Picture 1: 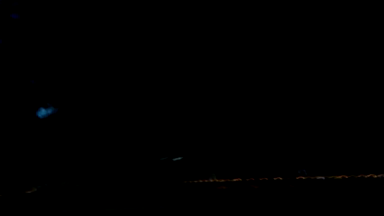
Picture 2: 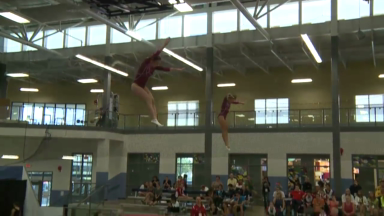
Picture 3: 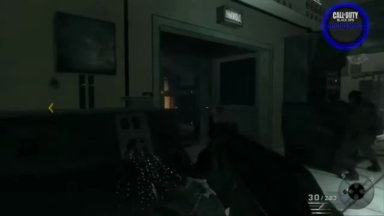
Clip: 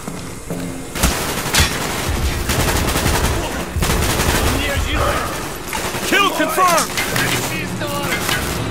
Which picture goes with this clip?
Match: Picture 3